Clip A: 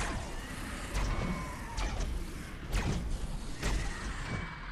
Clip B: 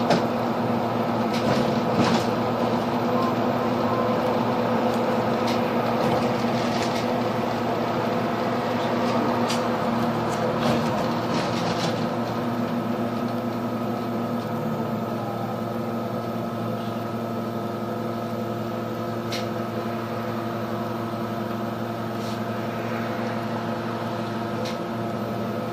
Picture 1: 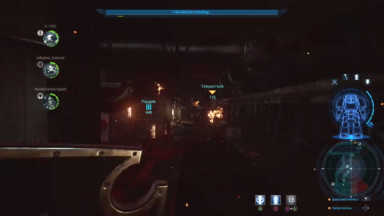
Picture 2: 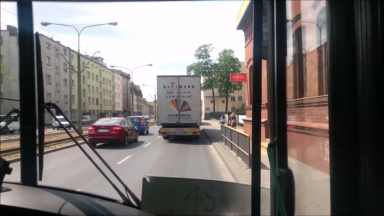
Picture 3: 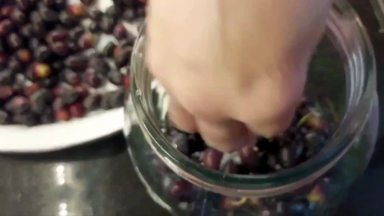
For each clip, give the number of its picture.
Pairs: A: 1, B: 2